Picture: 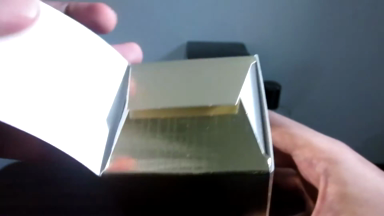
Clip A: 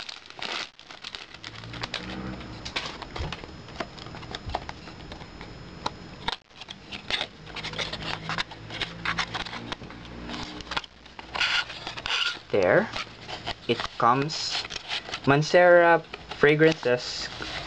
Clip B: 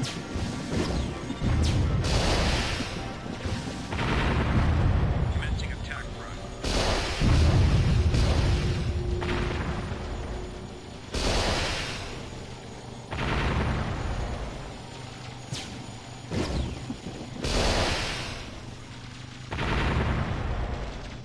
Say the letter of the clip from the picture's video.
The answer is A